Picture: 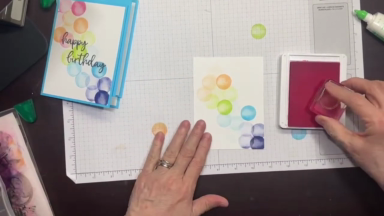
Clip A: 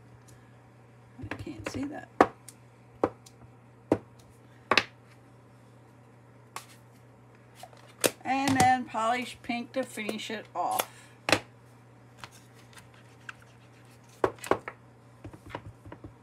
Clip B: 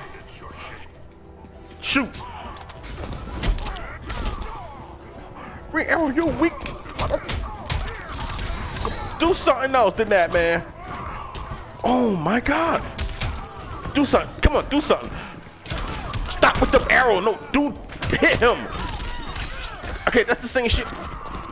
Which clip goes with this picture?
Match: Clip A